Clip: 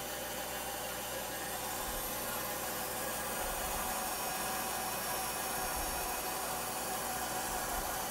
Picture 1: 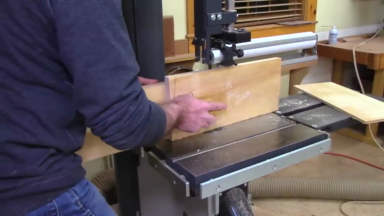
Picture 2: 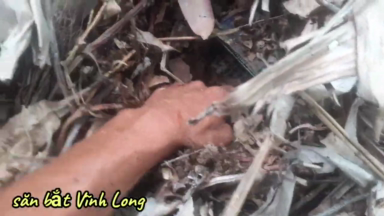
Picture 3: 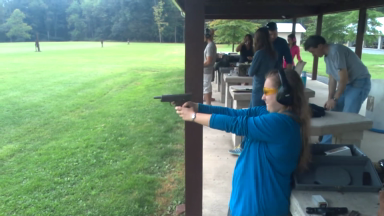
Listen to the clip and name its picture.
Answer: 1